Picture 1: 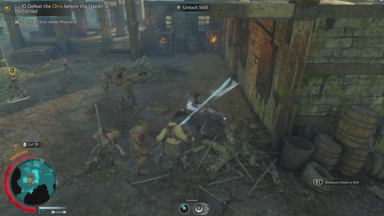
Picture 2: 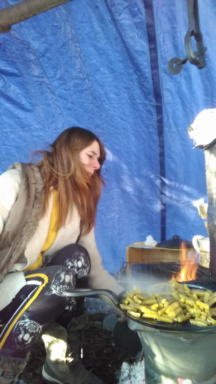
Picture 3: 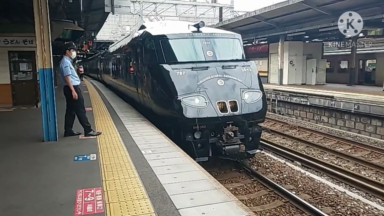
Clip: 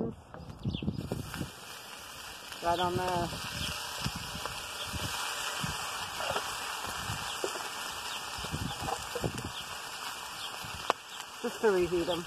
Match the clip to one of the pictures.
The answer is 2